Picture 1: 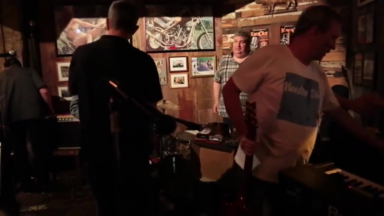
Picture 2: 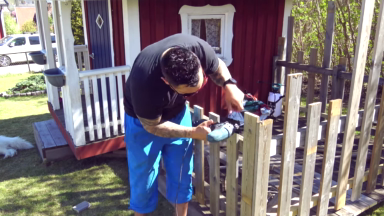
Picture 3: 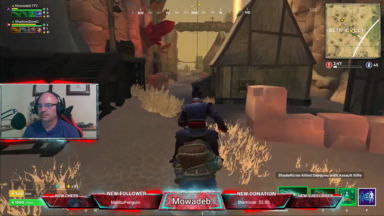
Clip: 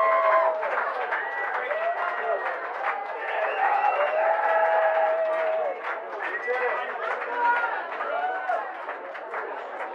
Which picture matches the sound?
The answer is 1